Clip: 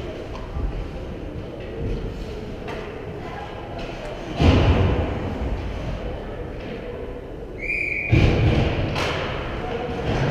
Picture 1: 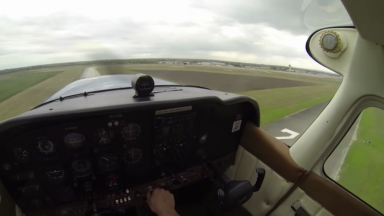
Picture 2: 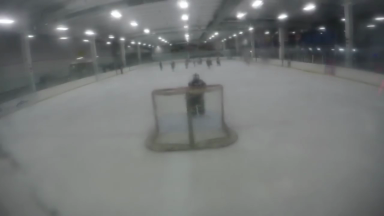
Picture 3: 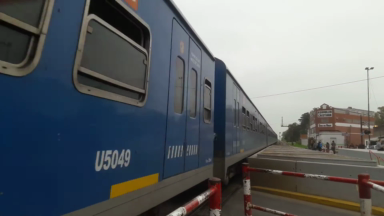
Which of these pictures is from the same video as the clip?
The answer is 2